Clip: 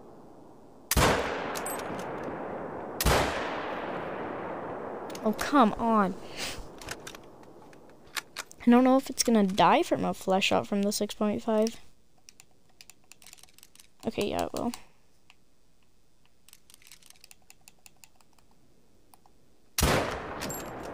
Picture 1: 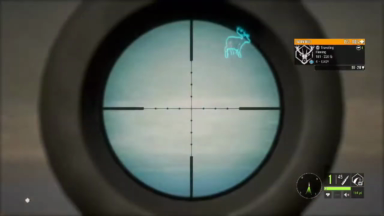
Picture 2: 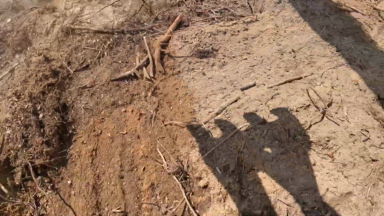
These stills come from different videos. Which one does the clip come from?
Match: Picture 1